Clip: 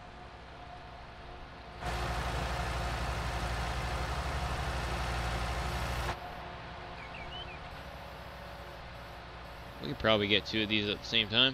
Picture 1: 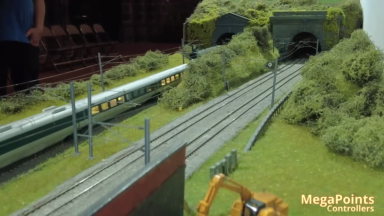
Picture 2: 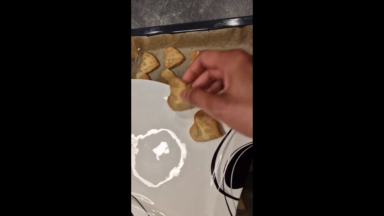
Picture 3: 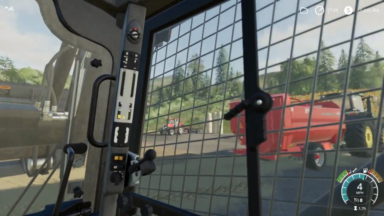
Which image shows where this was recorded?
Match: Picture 3